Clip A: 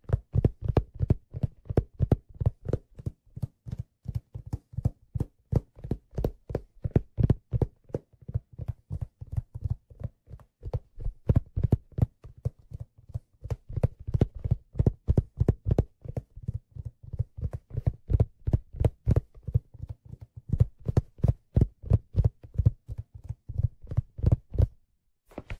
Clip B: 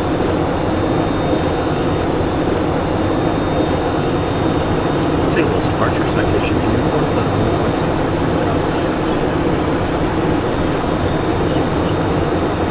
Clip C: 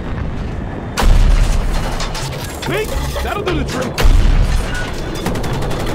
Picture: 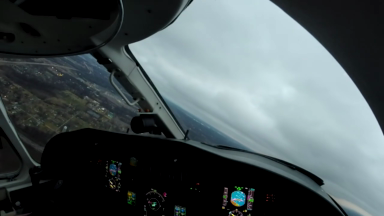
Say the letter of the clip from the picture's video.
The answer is B